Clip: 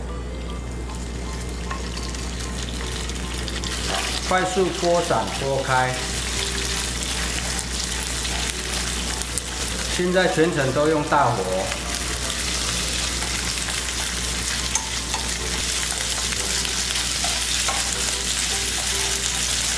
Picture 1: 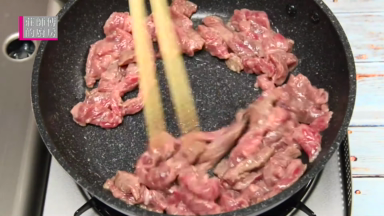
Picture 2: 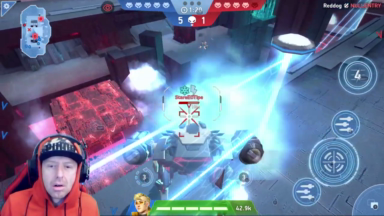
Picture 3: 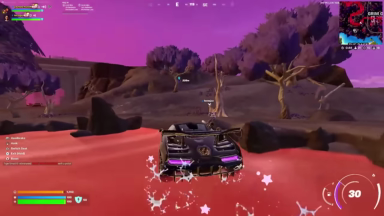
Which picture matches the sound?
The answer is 1